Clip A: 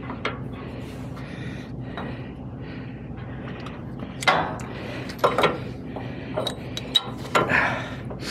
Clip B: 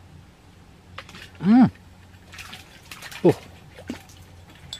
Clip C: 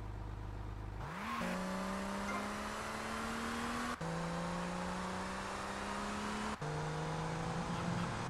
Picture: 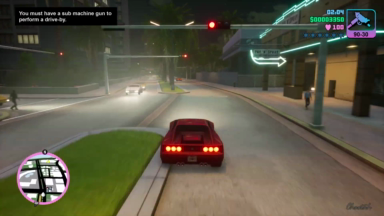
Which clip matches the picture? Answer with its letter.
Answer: C